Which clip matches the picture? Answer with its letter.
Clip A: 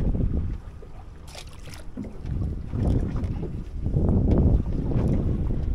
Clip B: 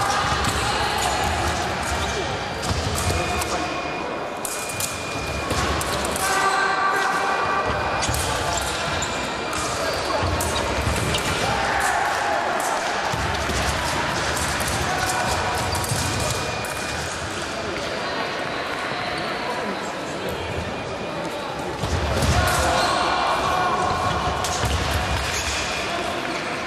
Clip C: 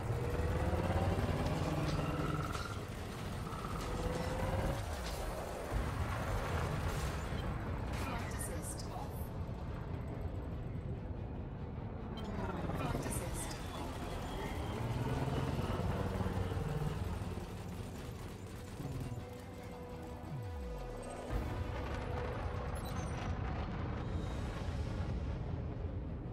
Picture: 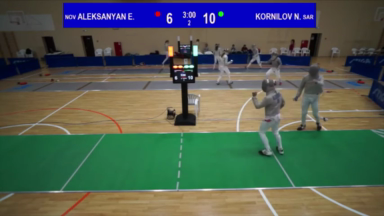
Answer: B